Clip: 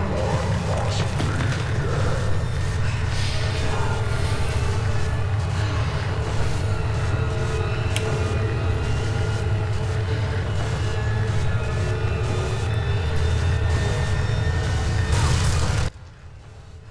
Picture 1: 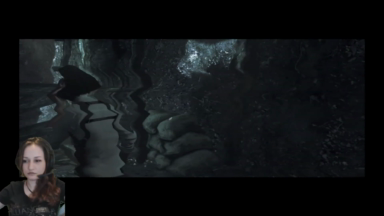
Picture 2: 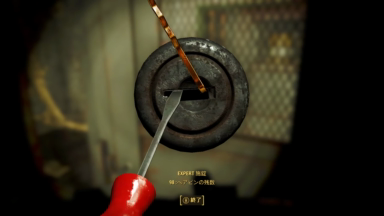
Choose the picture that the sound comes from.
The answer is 1